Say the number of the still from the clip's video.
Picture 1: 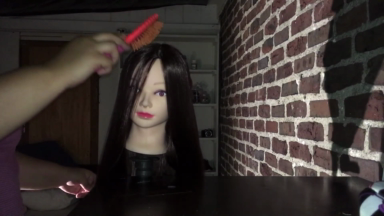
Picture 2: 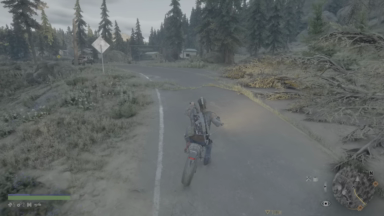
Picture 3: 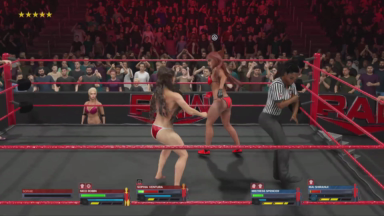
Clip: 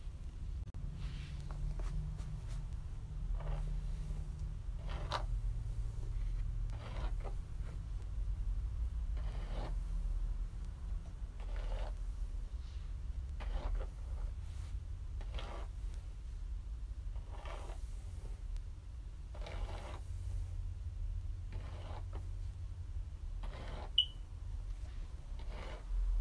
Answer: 1